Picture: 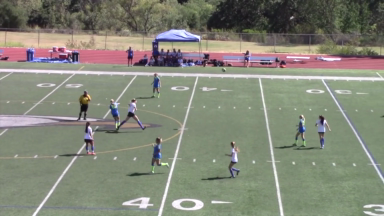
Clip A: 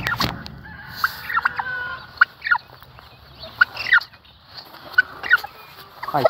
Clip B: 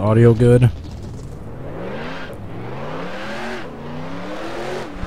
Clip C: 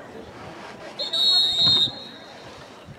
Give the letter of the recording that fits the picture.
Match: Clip C